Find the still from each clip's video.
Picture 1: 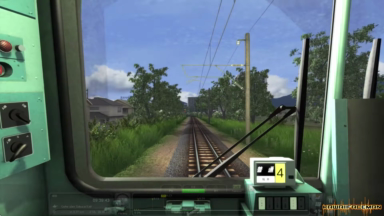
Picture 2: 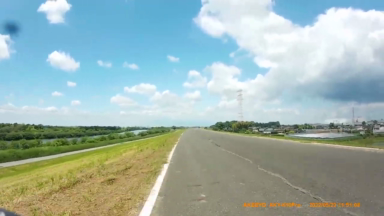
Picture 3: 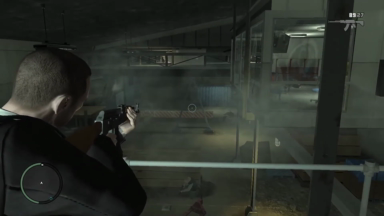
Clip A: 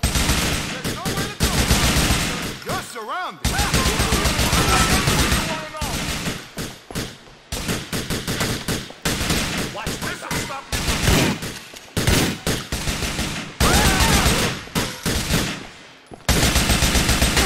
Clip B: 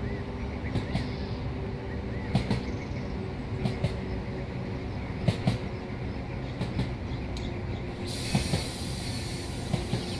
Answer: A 3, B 1